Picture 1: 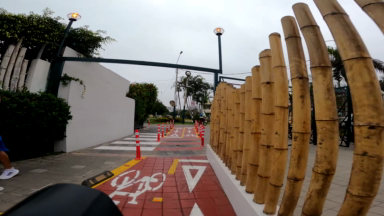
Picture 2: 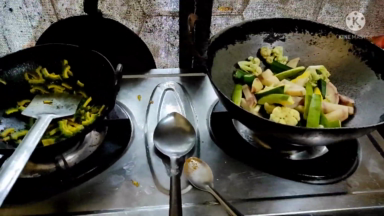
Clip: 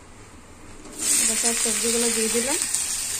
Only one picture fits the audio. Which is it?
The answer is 2